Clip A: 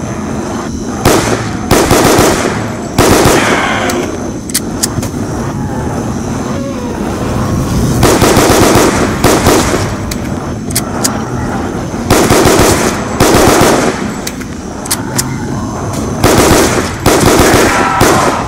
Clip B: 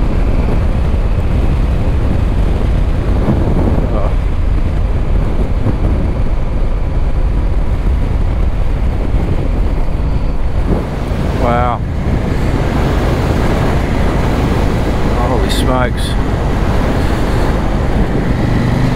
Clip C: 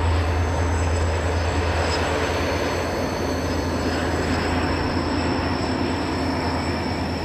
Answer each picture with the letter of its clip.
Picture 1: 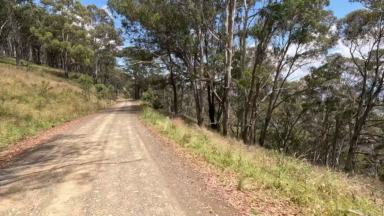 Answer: B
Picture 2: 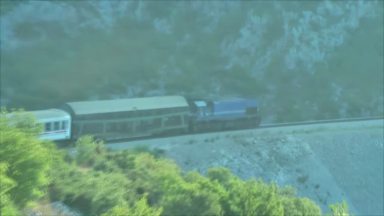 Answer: C